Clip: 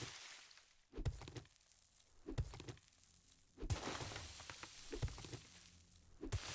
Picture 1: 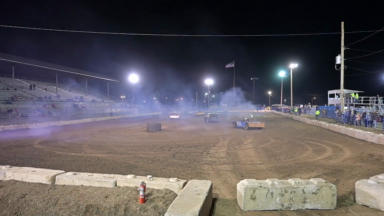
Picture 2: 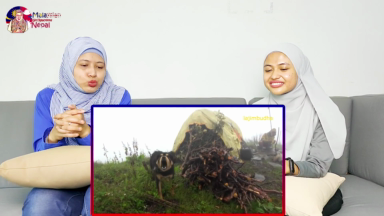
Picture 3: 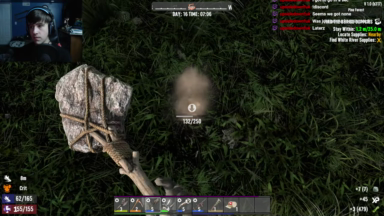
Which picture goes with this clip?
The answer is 3